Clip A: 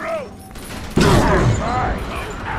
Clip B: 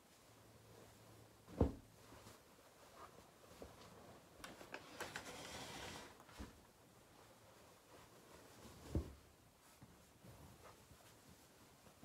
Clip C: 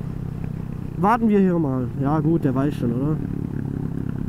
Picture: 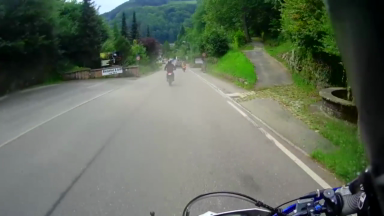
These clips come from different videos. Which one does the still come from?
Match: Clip C